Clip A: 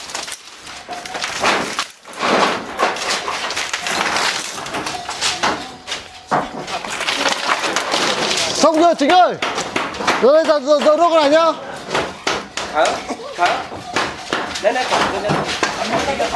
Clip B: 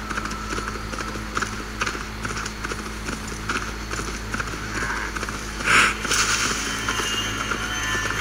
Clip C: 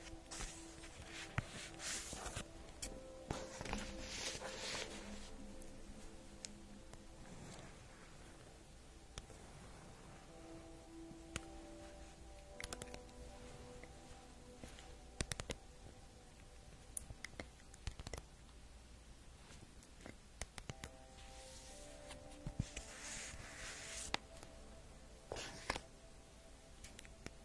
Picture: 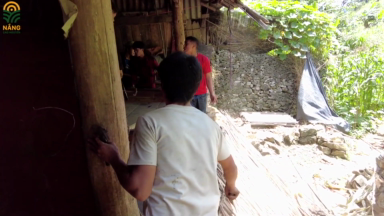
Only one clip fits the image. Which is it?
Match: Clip A